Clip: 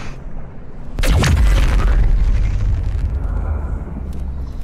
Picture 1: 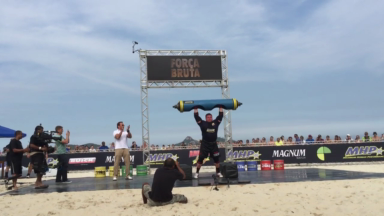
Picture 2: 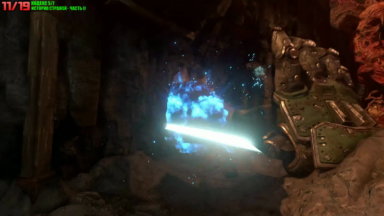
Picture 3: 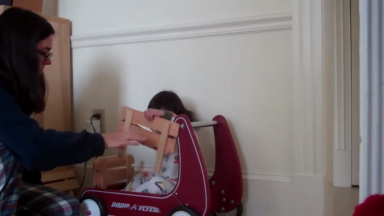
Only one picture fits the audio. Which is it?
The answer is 2